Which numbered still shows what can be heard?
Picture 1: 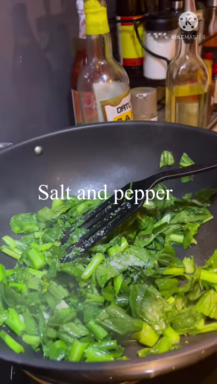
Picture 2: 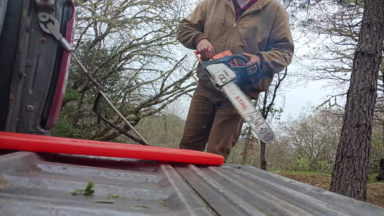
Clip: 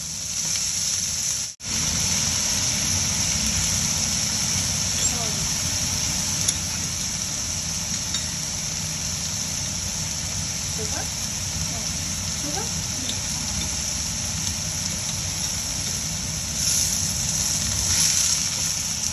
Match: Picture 1